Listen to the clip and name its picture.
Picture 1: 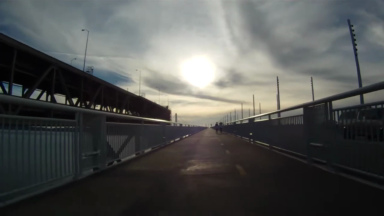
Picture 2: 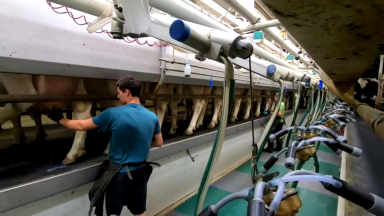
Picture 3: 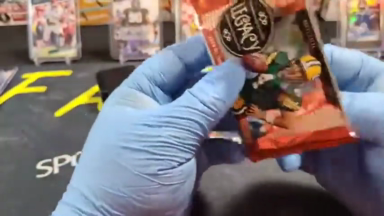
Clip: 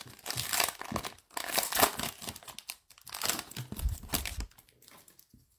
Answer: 3